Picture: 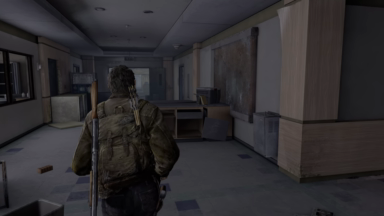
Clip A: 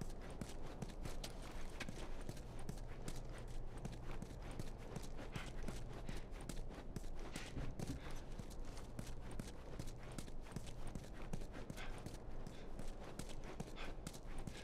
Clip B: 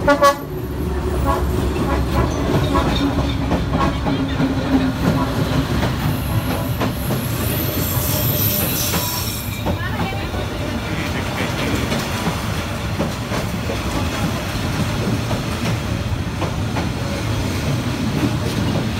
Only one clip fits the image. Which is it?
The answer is A